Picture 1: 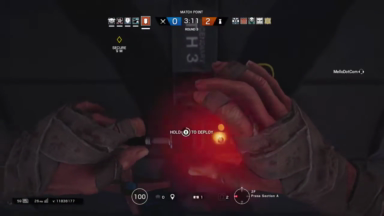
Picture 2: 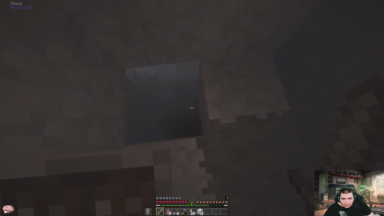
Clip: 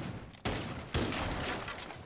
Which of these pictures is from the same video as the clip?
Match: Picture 1